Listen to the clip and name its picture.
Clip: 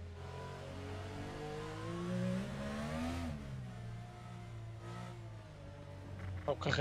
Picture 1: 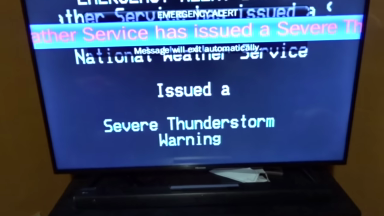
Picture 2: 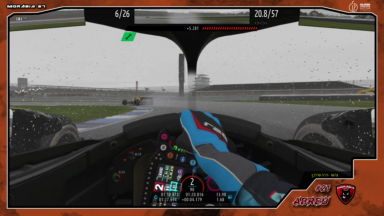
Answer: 2